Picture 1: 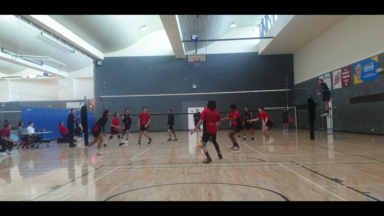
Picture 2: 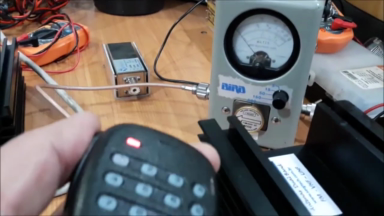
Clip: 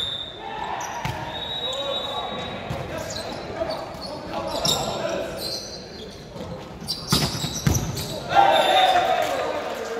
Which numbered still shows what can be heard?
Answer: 1